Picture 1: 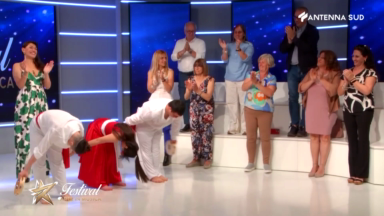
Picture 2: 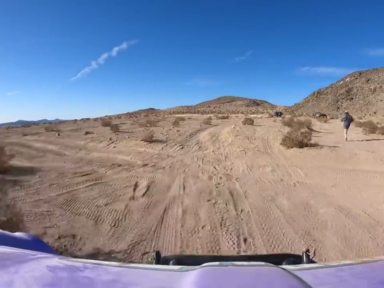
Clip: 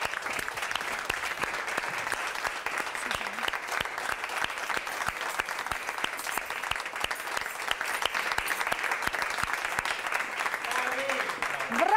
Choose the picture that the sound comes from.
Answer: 1